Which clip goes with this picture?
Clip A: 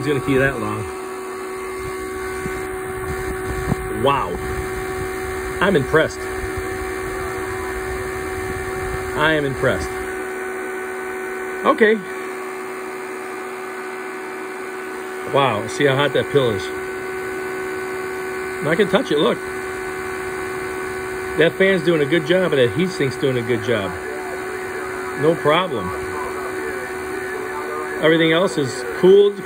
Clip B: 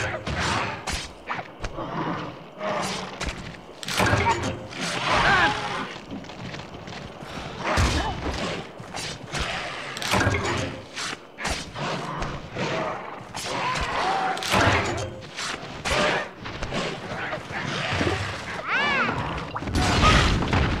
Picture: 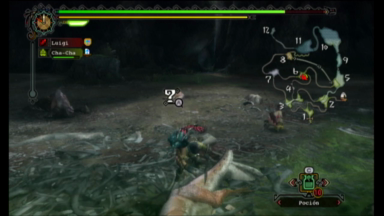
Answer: B